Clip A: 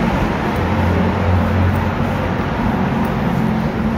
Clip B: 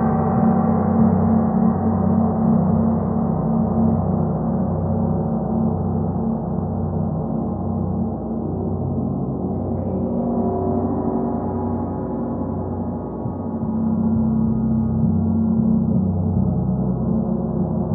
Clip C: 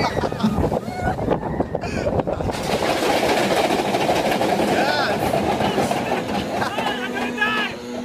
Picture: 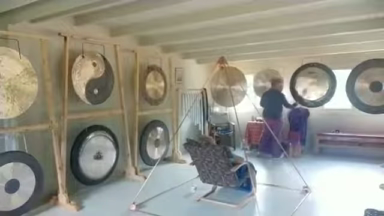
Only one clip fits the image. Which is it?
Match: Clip B